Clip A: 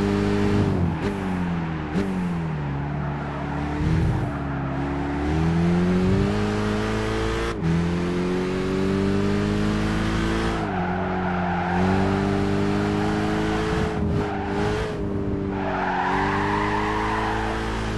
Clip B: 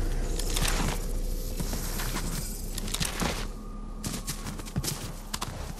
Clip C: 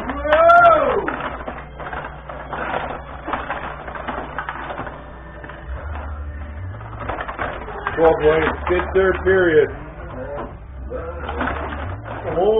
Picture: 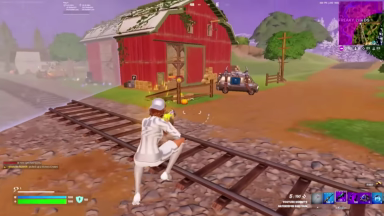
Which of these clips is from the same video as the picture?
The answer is B